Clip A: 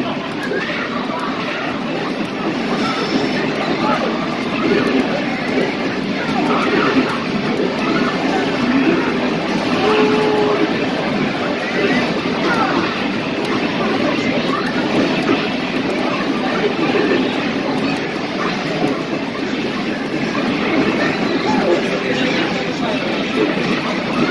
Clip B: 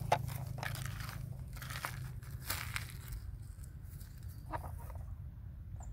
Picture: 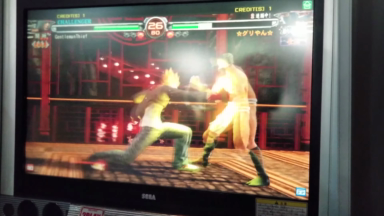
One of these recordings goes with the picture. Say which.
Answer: A